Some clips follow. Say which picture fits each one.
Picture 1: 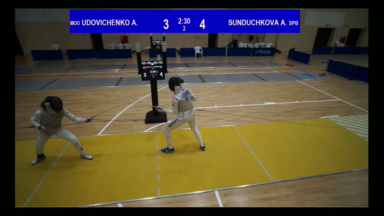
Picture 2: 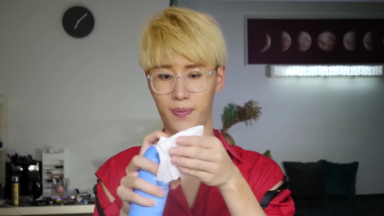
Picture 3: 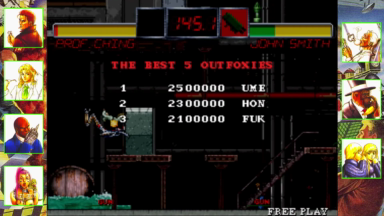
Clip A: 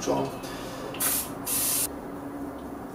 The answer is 2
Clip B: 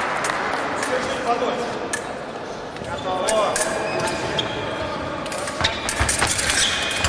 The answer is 1